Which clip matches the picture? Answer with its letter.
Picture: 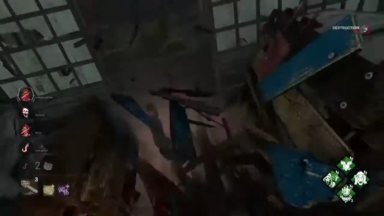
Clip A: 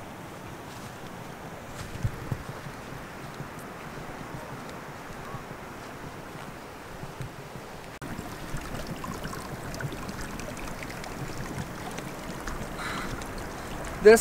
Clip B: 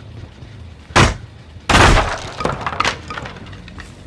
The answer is B